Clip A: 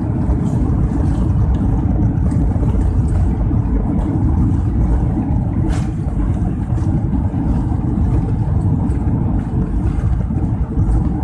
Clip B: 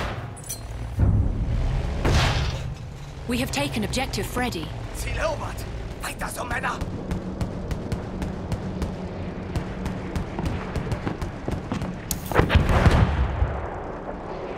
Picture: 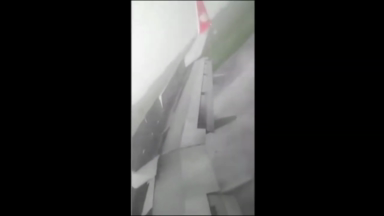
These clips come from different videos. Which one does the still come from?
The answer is A